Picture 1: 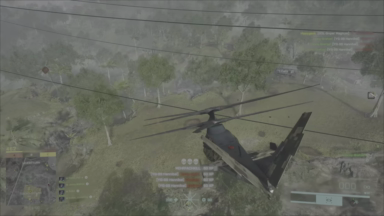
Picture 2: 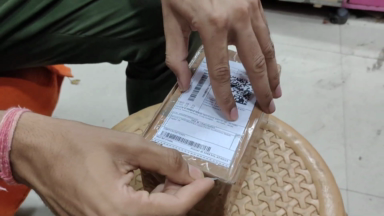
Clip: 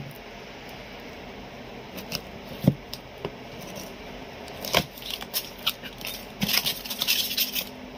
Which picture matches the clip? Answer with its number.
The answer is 2